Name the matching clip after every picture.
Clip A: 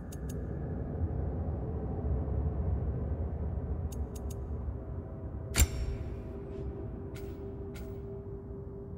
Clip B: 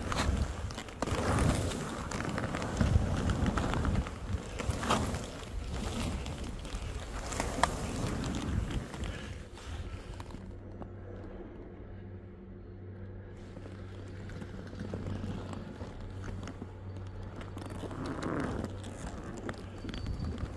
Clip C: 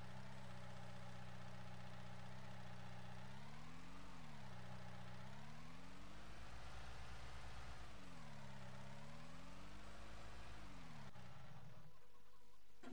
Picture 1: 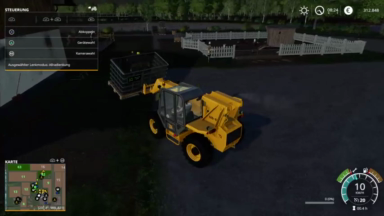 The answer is C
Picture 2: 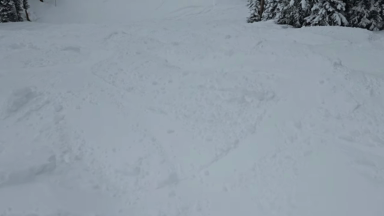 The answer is B